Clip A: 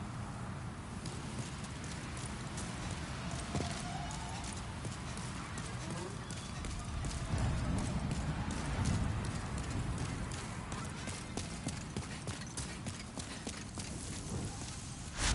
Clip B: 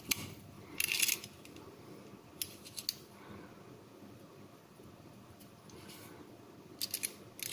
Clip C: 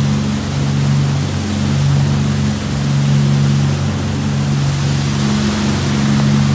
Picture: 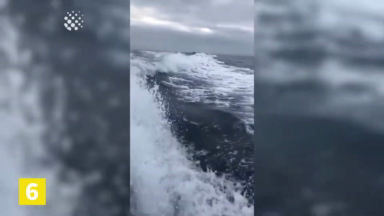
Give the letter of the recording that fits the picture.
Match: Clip C